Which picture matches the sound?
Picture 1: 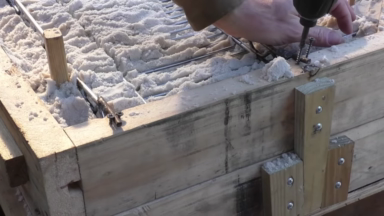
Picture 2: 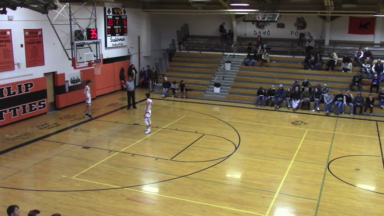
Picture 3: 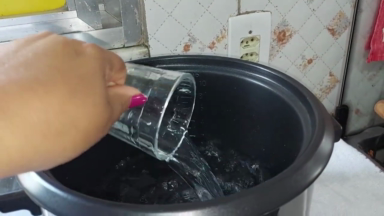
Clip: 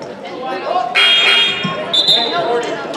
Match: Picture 2